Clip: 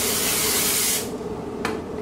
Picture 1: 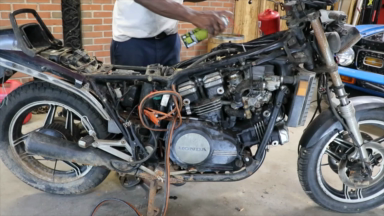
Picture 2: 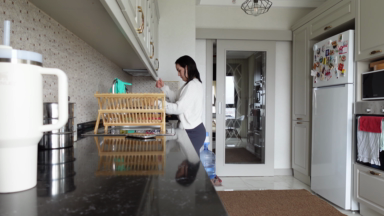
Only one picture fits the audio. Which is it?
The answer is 1